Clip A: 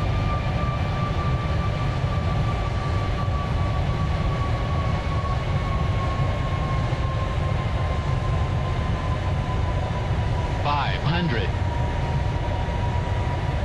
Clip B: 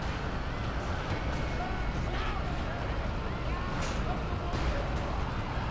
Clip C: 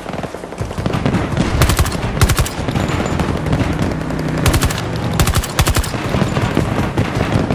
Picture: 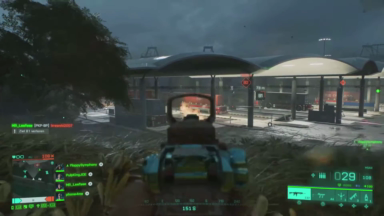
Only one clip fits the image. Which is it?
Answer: C